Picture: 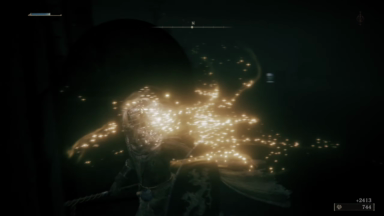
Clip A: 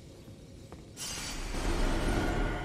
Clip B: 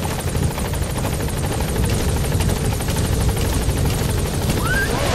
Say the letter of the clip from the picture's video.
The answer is A